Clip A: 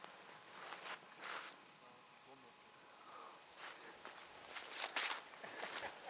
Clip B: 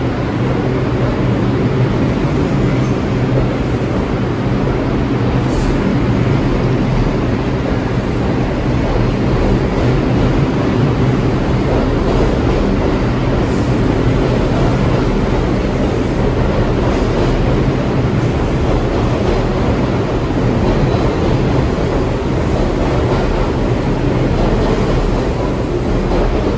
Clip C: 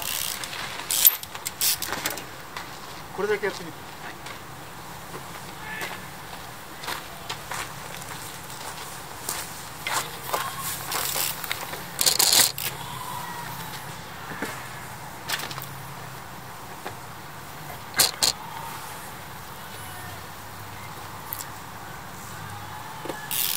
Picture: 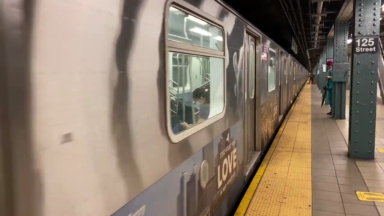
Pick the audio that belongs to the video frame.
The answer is B